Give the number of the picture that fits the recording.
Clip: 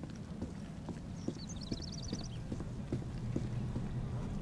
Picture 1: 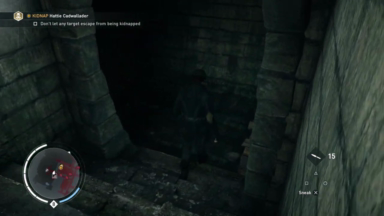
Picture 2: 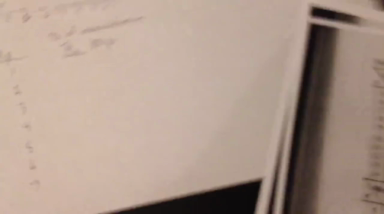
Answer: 1